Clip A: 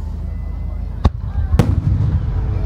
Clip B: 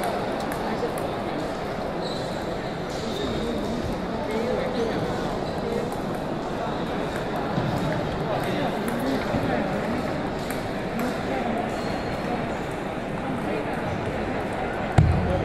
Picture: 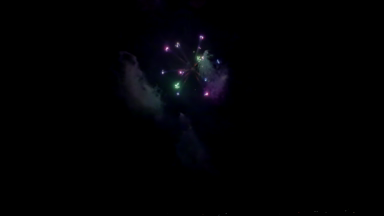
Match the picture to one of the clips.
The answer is A